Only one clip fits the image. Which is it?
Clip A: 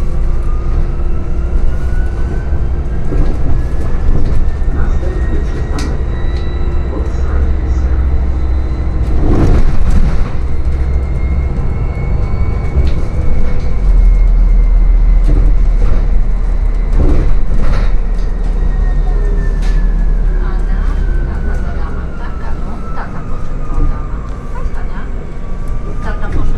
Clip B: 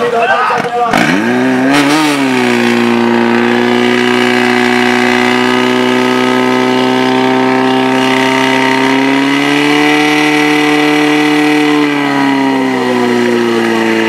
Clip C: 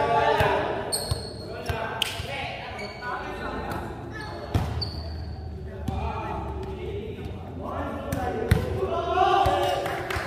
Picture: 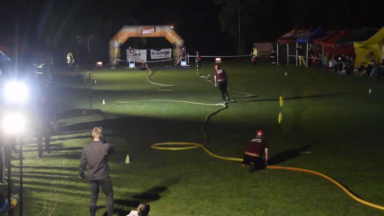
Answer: B